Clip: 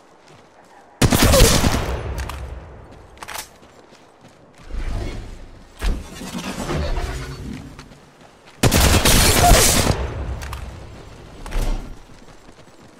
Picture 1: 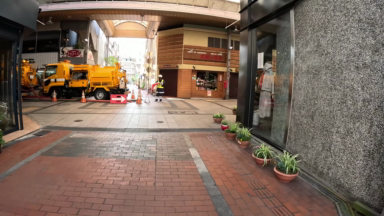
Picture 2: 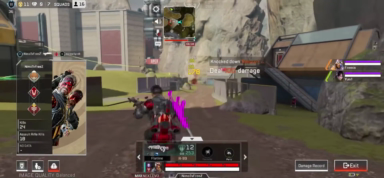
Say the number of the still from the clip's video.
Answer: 2